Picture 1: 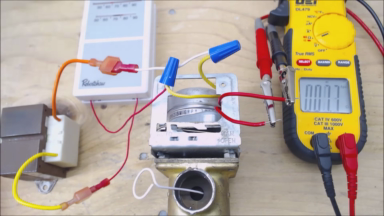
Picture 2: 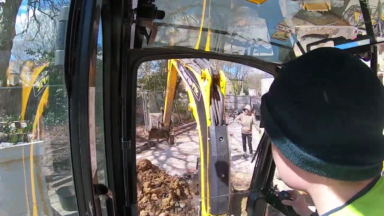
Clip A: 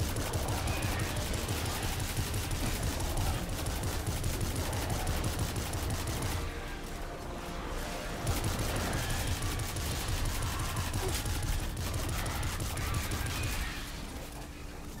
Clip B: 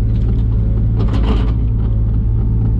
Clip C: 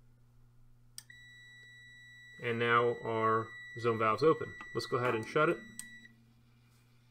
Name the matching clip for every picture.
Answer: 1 C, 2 B